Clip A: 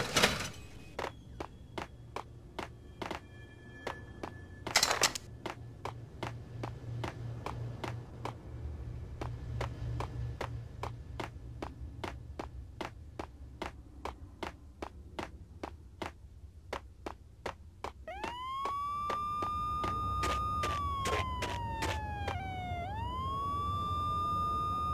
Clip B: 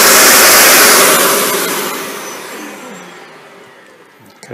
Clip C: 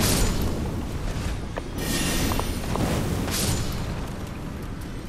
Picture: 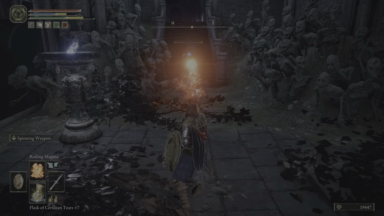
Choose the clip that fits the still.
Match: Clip C